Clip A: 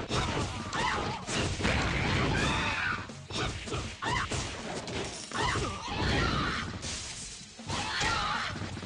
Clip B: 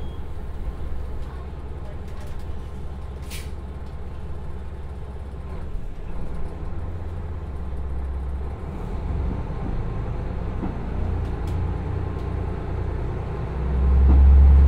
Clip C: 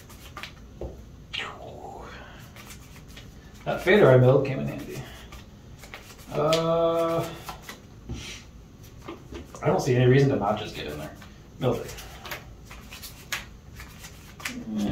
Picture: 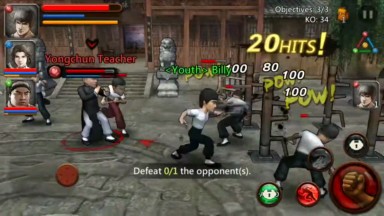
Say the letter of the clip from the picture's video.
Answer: A